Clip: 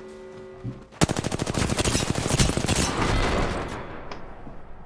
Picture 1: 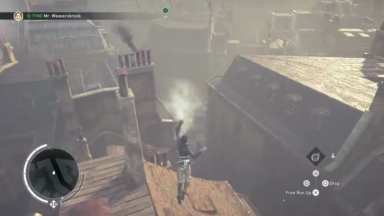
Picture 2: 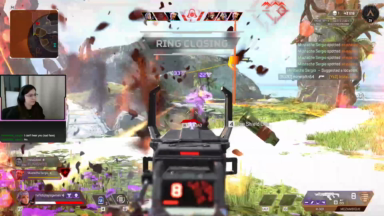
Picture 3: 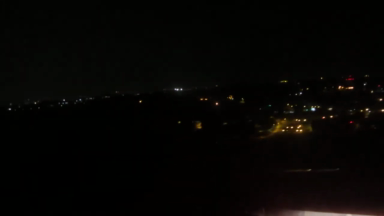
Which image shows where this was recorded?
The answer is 2